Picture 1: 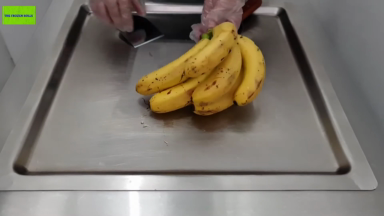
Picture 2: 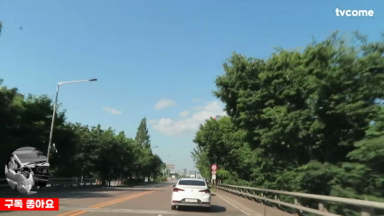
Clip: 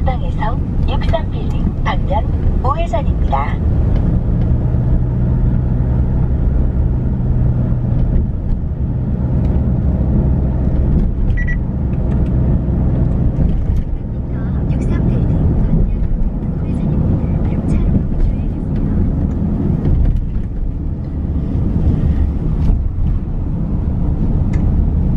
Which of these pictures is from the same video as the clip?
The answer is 2